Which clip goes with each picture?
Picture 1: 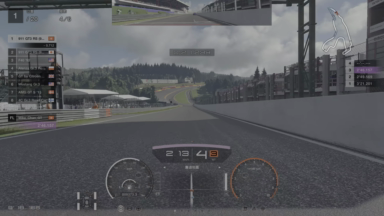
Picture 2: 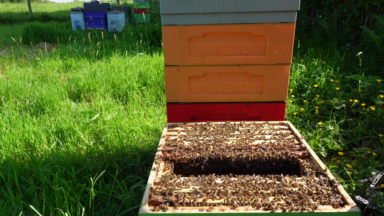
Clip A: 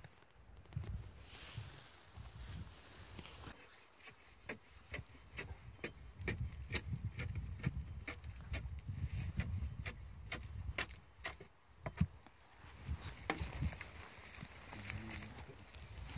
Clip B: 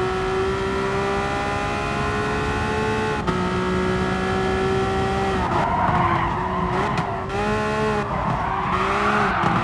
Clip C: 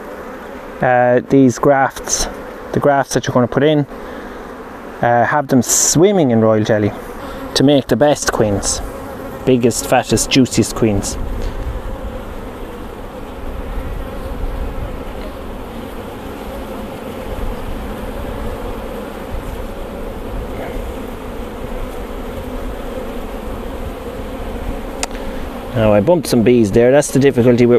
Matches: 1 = B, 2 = C